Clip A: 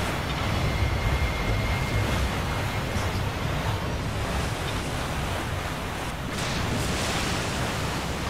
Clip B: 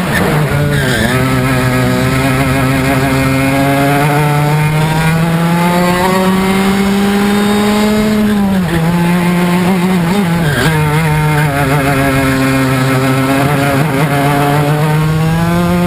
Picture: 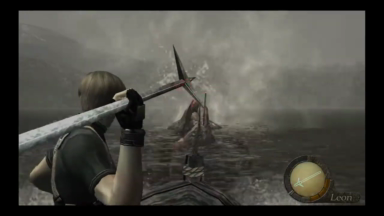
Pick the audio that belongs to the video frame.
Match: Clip A